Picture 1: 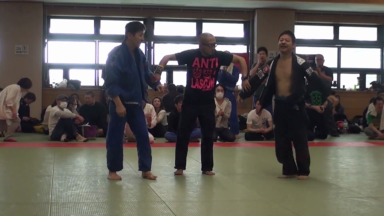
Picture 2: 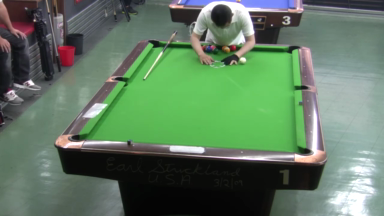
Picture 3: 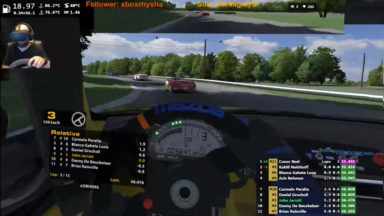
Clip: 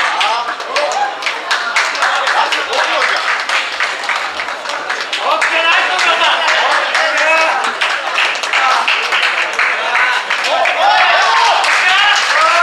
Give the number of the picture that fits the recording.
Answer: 1